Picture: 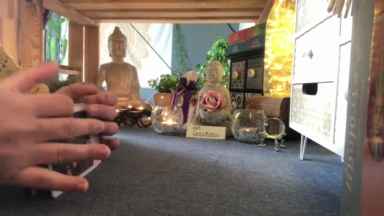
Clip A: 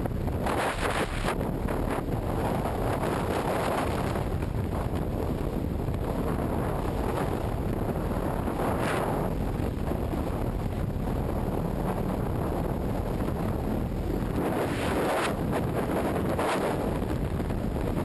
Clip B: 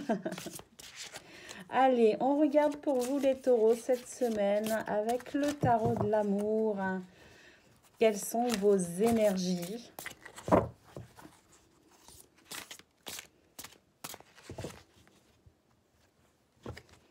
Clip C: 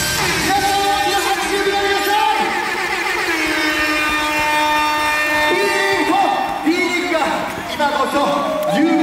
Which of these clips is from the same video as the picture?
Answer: B